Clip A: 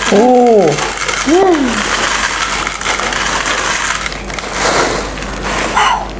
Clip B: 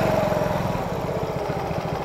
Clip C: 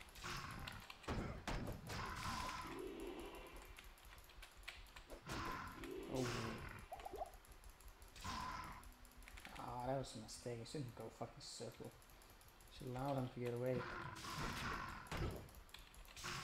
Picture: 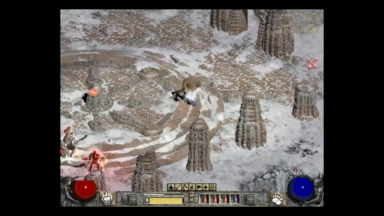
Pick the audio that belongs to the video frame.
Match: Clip C